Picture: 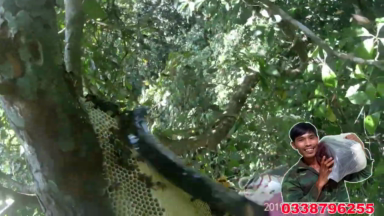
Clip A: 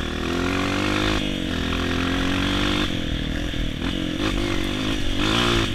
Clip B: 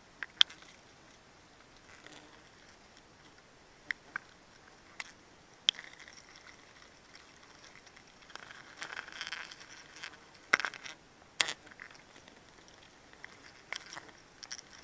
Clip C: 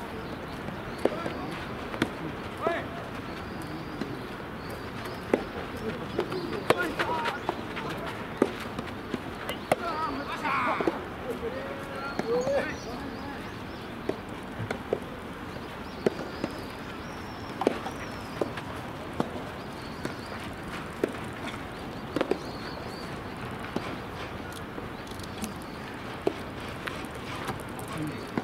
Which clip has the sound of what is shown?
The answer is B